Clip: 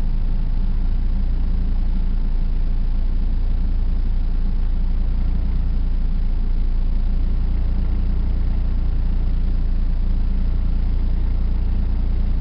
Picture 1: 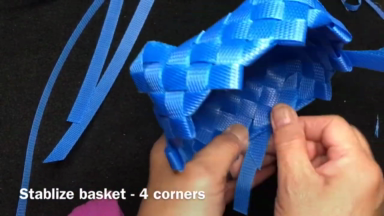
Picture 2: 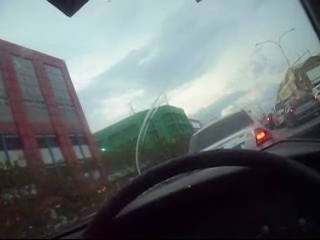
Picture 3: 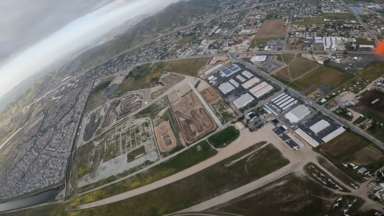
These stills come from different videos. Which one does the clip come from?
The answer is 2